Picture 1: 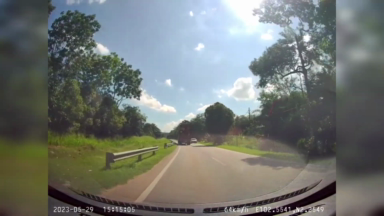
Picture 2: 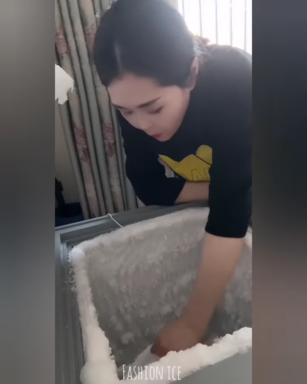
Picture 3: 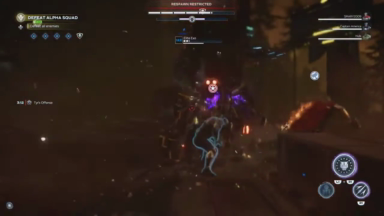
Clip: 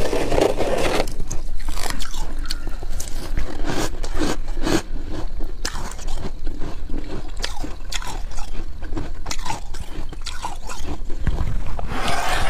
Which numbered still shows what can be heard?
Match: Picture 2